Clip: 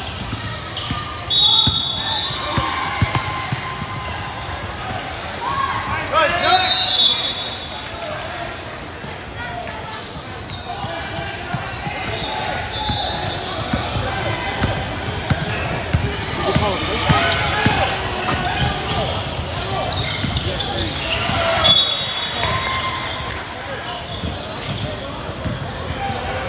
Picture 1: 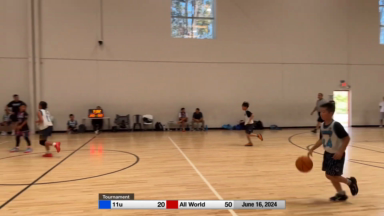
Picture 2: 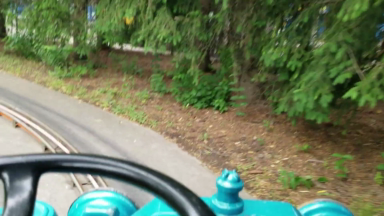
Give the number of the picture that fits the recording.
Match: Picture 1